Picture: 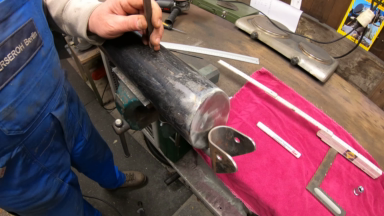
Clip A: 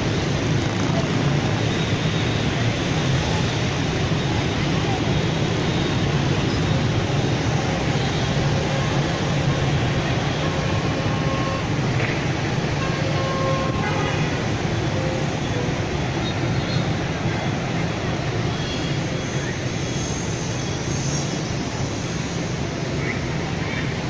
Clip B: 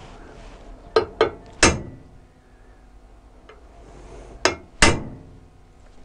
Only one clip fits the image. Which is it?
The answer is B